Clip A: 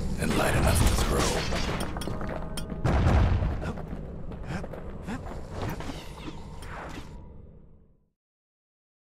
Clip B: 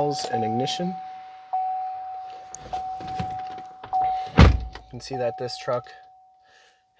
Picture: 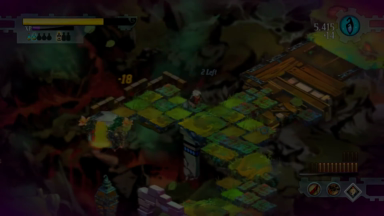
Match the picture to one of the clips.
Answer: A